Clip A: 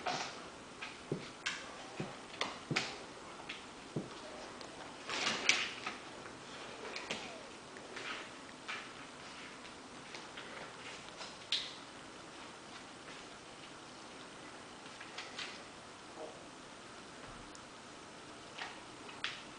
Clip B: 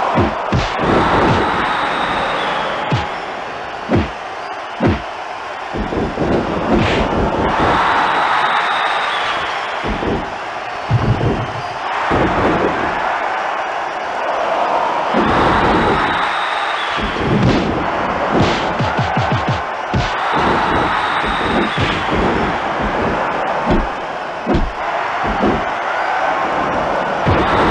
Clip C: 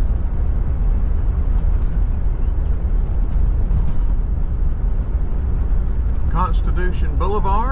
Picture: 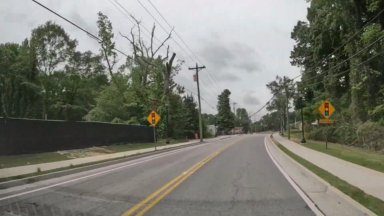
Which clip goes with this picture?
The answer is C